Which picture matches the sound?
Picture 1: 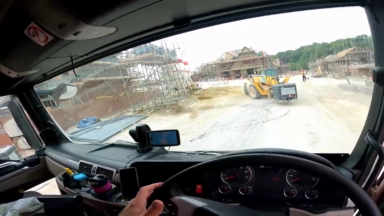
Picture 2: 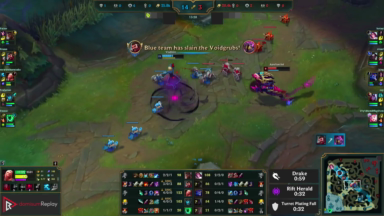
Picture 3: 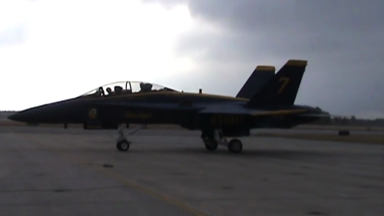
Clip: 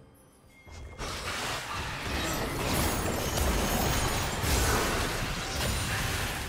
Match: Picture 2